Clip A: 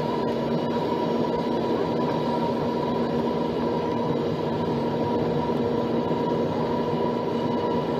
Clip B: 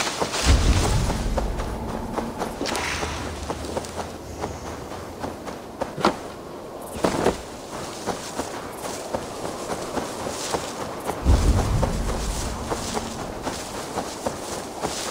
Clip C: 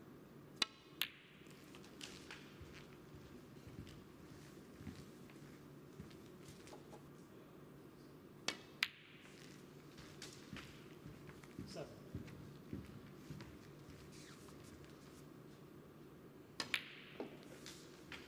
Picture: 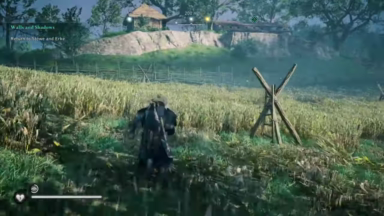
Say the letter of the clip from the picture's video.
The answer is B